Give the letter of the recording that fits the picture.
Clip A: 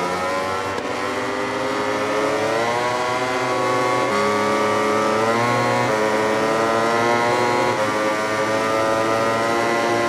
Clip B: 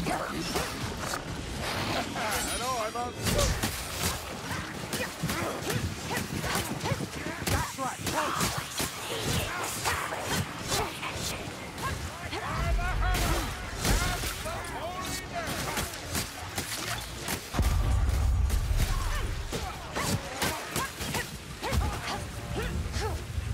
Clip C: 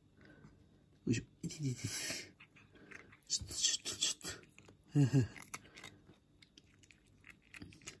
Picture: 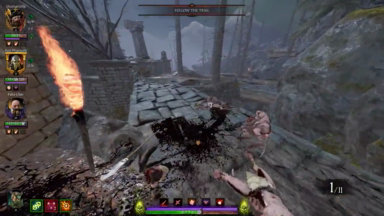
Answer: B